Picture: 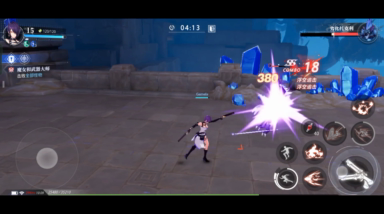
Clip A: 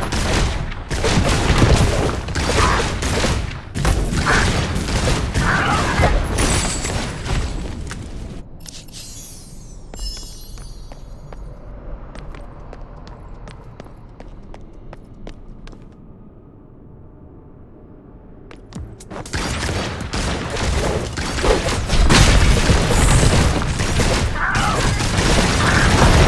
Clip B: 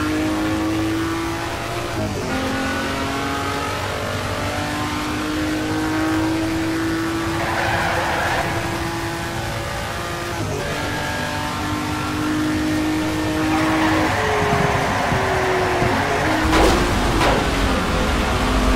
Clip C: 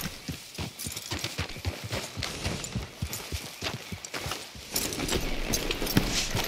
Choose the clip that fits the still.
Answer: A